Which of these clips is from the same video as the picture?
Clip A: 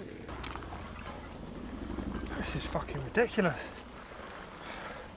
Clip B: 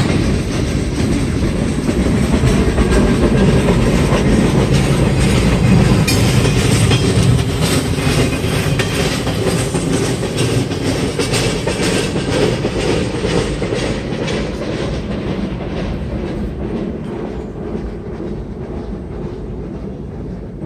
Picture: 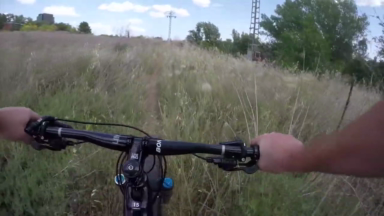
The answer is A